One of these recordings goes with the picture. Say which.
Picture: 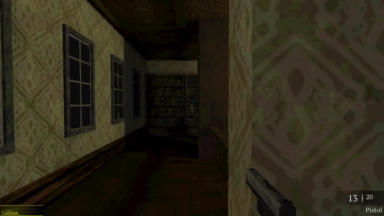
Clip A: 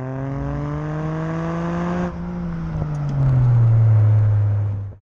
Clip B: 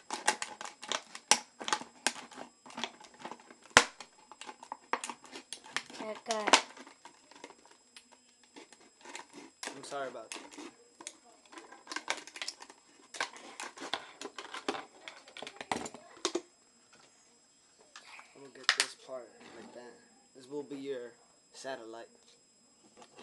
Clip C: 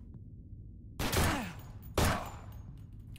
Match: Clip C